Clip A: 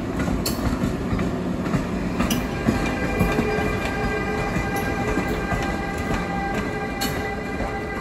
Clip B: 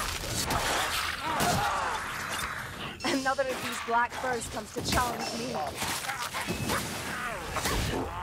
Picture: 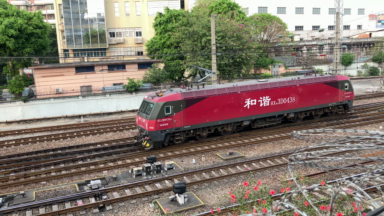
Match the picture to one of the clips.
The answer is A